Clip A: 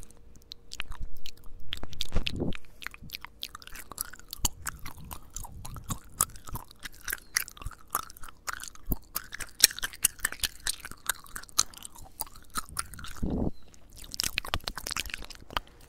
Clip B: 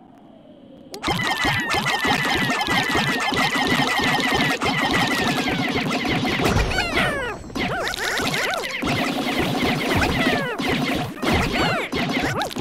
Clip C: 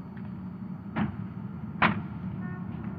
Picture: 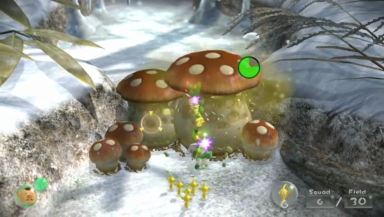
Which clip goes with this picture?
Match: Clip B